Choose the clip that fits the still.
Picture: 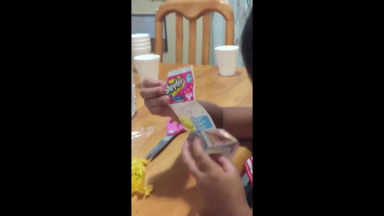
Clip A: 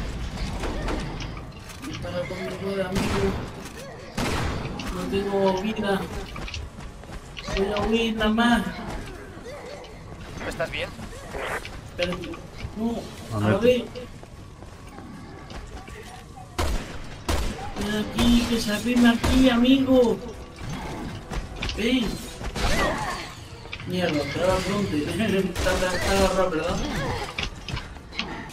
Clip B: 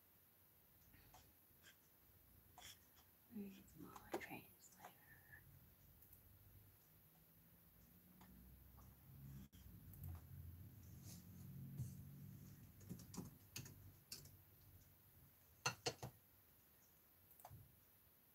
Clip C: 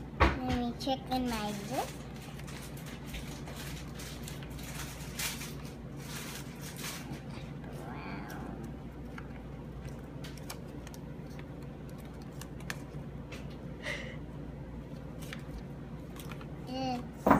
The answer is C